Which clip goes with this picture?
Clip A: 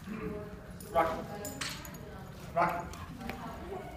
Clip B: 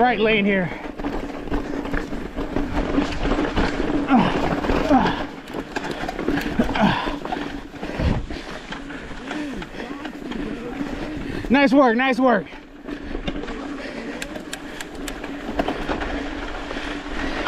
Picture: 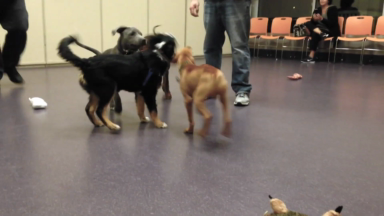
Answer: A